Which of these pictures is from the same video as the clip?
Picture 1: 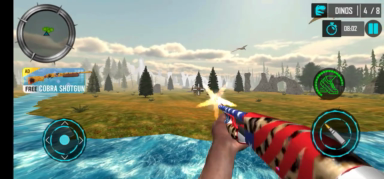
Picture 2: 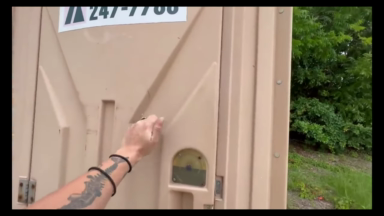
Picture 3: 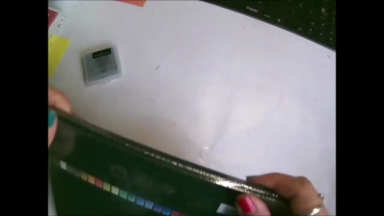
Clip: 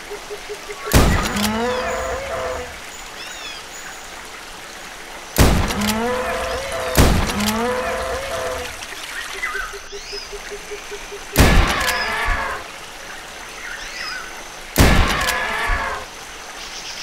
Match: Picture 1